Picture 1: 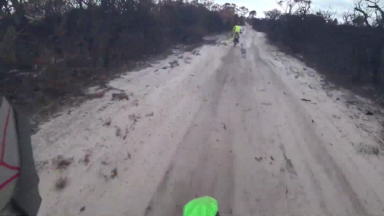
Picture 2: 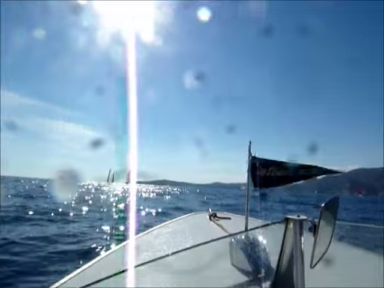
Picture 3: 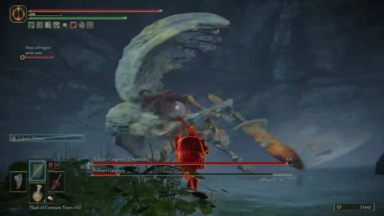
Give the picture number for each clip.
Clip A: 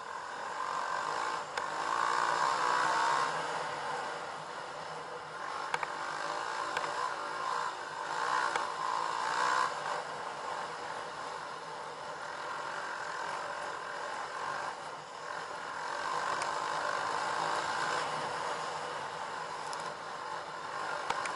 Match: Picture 1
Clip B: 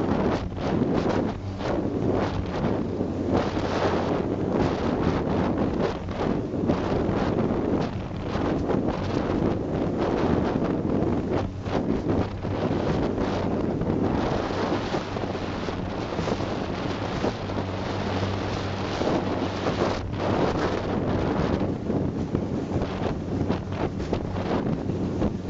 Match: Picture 2